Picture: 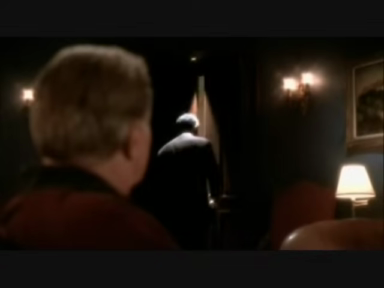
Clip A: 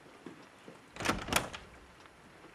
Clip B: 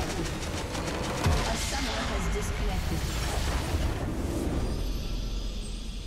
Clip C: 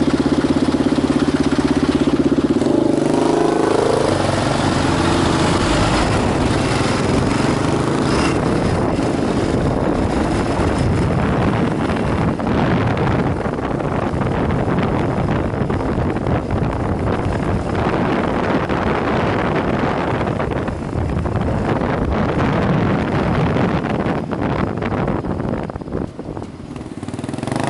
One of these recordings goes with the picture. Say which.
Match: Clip A